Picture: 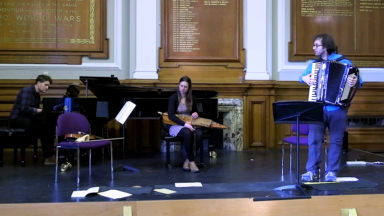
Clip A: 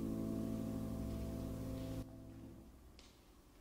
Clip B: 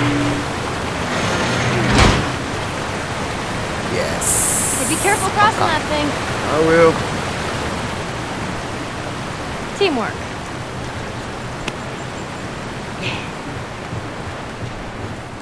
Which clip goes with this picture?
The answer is A